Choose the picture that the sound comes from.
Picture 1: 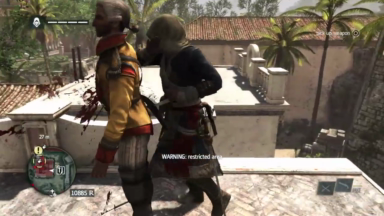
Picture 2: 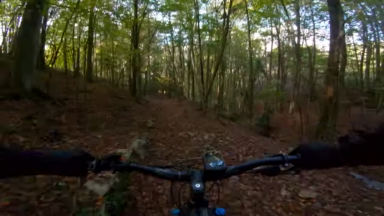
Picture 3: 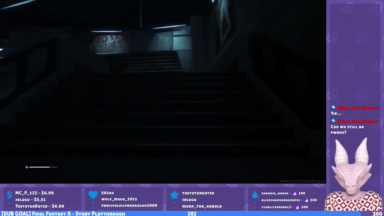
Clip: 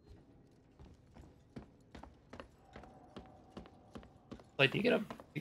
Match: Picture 3